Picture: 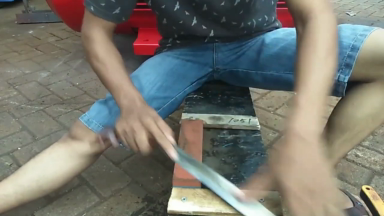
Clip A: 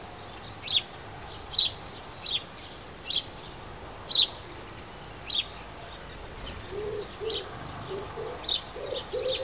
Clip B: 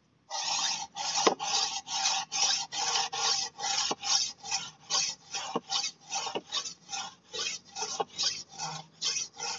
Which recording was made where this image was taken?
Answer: B